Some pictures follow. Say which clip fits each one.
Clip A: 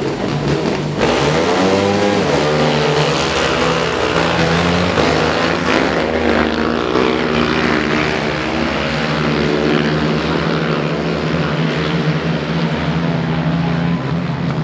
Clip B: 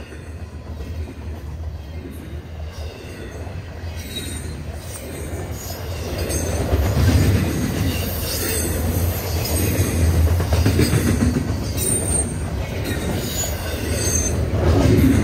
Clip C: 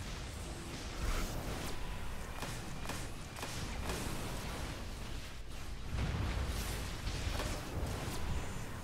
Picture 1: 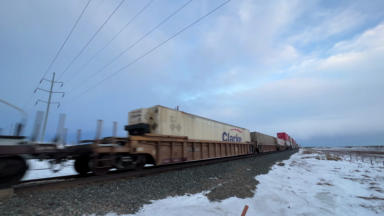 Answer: B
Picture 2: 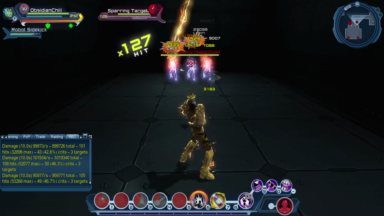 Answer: C